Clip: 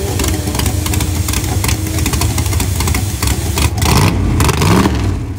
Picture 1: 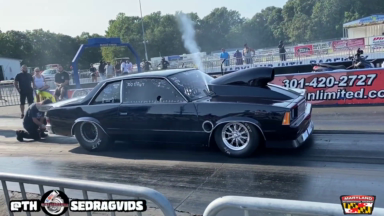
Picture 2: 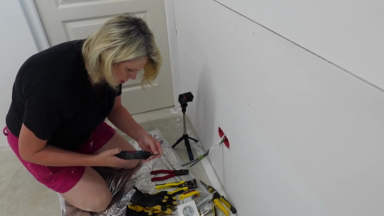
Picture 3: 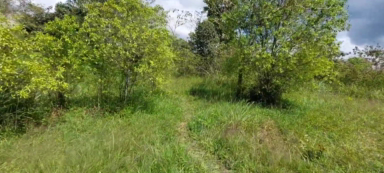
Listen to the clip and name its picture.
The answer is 1